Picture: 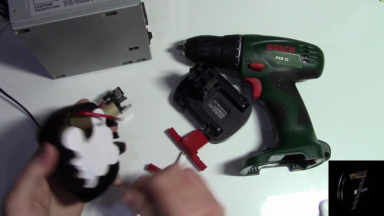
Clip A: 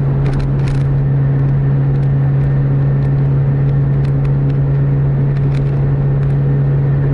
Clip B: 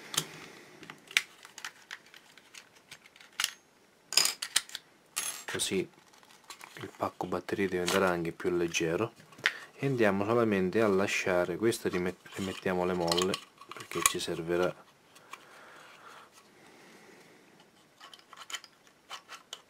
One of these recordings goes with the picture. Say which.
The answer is B